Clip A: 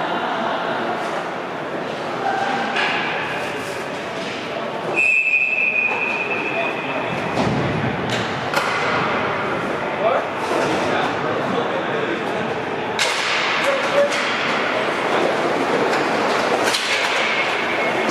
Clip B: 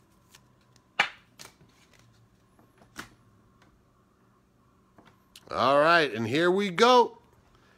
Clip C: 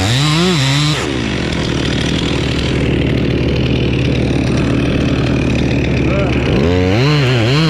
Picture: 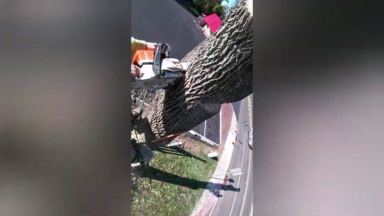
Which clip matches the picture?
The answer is C